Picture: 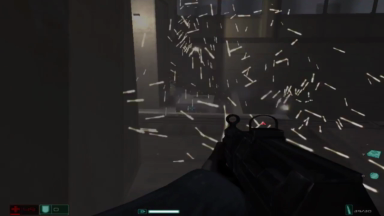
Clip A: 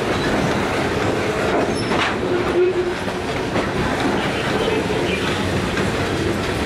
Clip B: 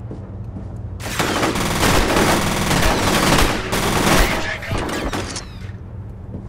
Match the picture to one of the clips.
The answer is B